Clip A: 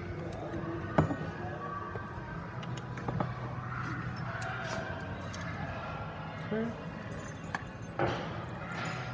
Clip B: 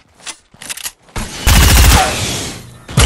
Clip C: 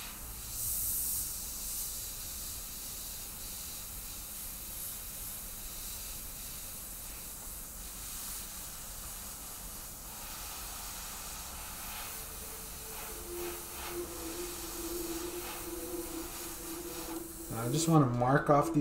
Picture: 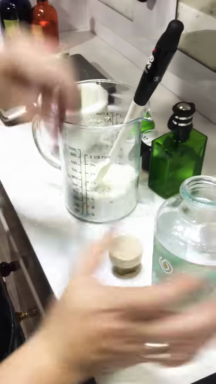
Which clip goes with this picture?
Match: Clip A